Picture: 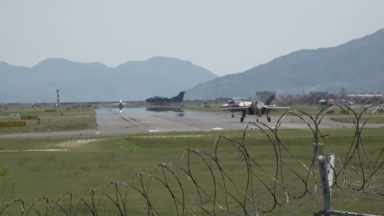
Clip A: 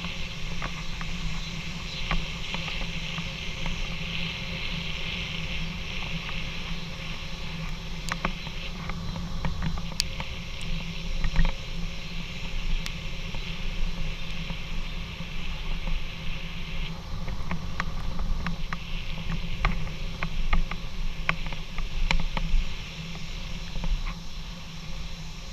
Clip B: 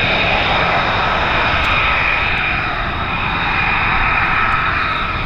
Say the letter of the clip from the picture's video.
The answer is B